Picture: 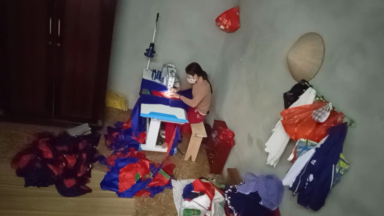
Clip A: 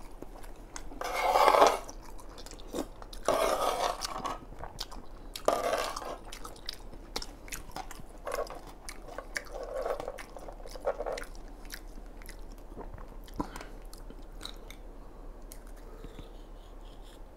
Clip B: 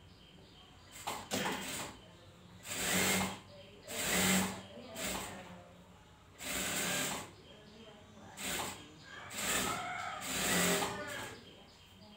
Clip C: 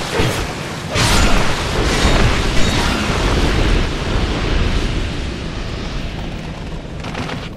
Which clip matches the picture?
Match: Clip B